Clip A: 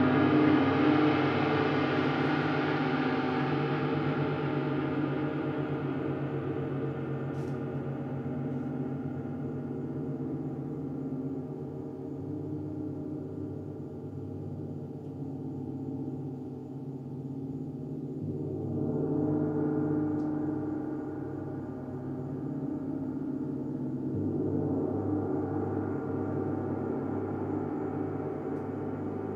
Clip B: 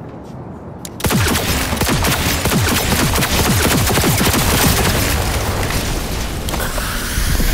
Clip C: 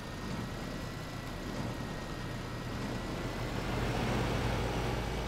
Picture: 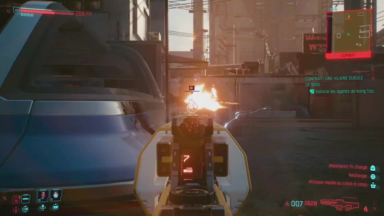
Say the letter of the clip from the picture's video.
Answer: B